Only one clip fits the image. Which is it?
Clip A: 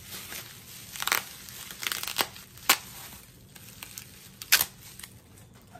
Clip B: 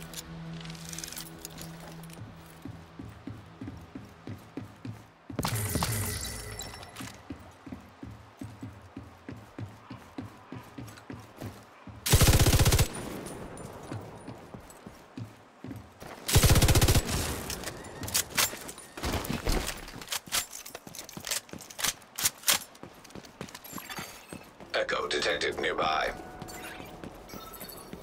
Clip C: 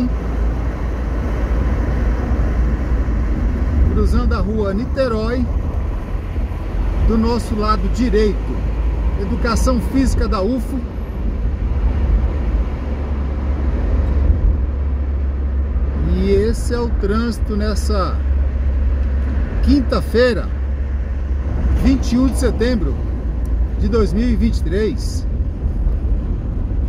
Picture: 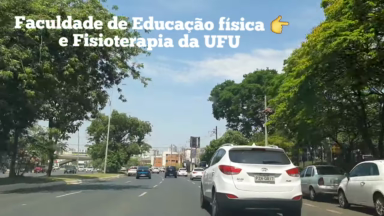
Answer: C